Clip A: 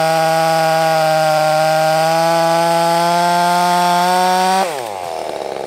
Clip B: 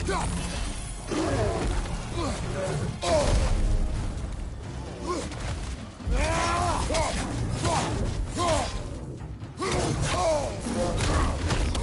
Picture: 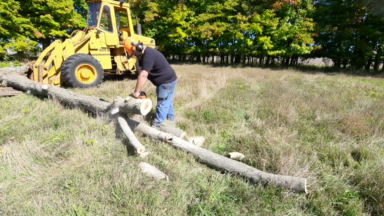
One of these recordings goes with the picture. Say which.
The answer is A